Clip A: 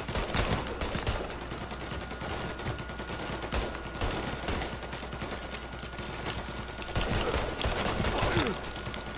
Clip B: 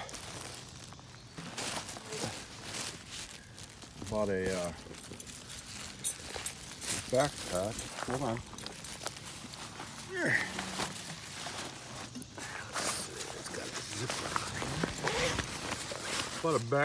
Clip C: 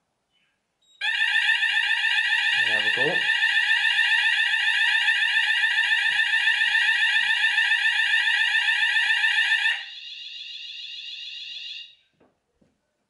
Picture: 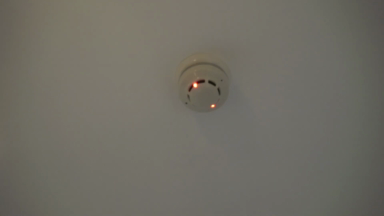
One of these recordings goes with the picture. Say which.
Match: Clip C